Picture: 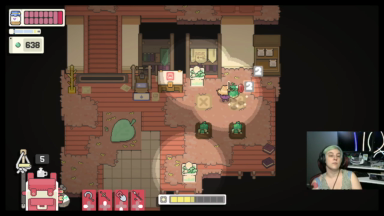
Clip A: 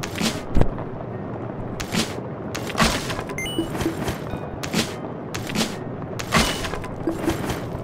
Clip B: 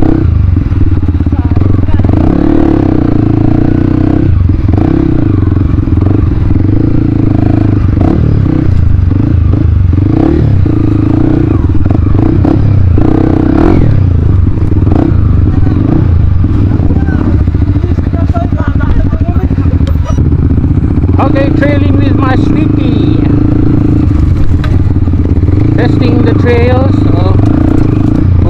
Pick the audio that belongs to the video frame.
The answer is A